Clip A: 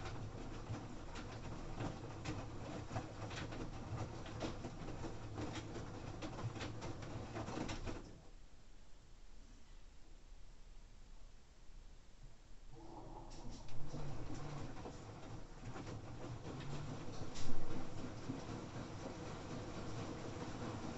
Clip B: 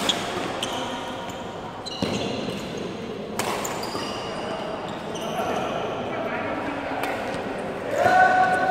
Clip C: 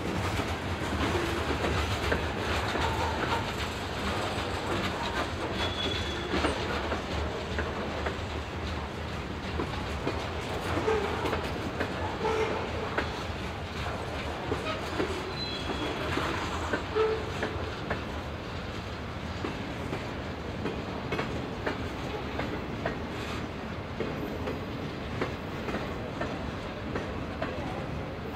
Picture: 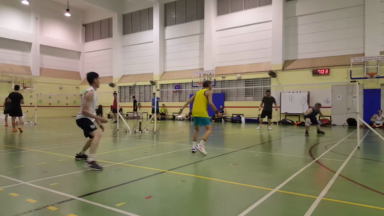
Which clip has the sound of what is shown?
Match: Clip B